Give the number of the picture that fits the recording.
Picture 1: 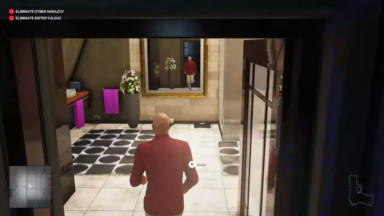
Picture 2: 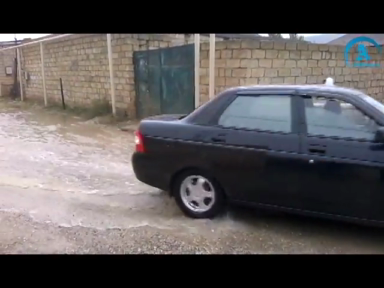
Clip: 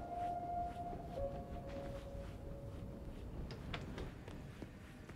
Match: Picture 1